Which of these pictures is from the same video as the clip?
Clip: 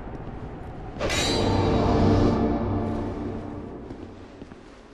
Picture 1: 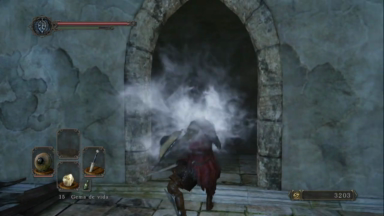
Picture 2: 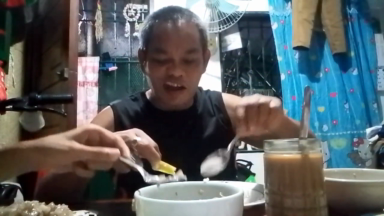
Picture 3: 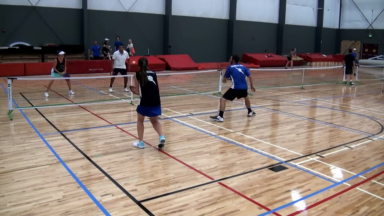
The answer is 1